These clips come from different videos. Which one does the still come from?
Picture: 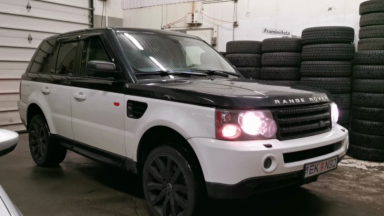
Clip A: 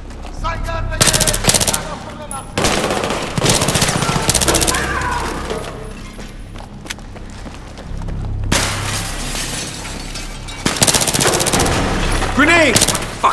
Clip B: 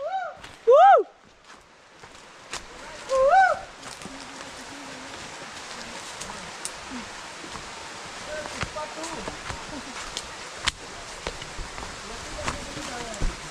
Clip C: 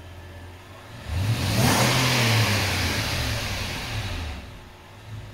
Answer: C